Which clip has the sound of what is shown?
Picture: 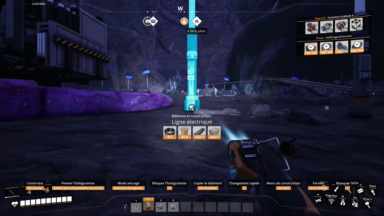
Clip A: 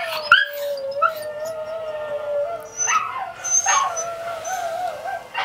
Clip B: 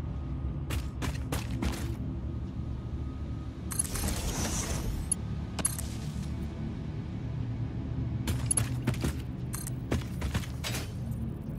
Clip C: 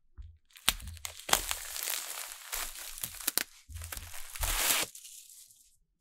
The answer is B